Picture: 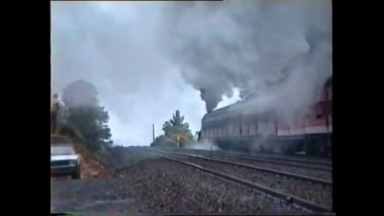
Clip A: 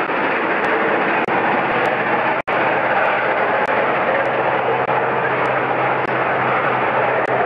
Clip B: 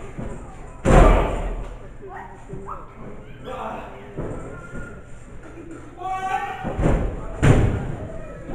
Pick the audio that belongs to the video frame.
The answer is A